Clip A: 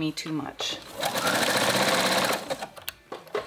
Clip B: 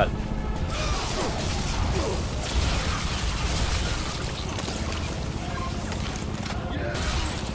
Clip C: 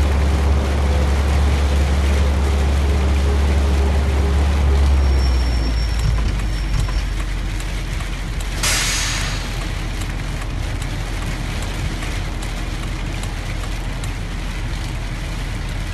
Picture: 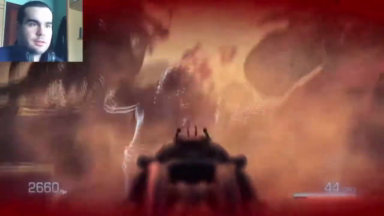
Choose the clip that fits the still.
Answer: B